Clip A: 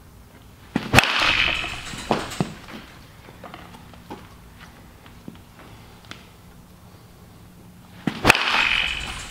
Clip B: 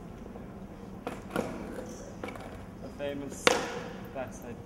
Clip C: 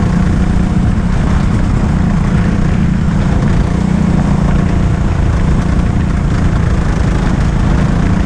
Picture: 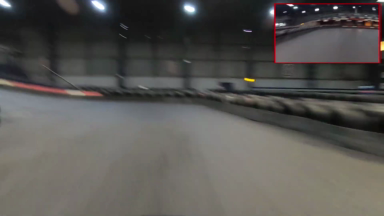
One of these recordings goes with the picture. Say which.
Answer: C